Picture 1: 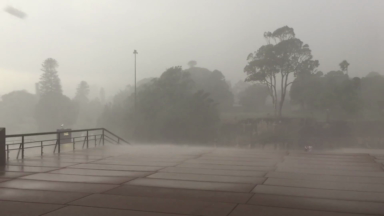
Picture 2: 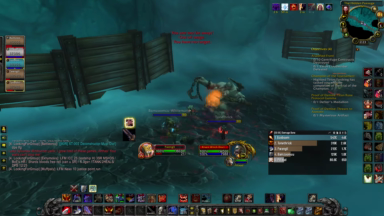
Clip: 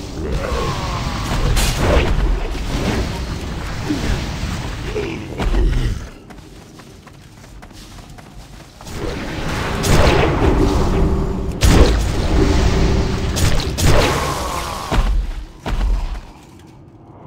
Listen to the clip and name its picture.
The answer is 2